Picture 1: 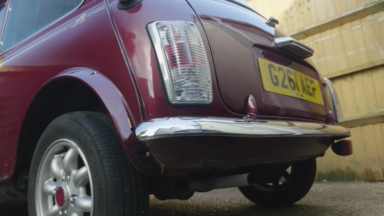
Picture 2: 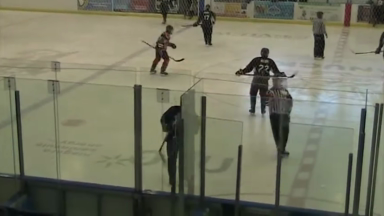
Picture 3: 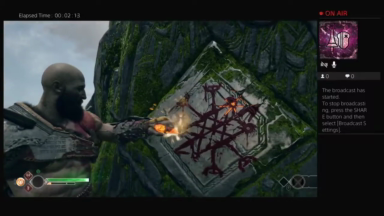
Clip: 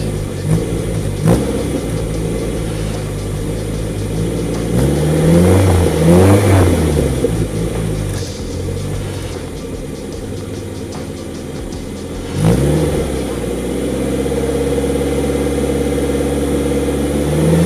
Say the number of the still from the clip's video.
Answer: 1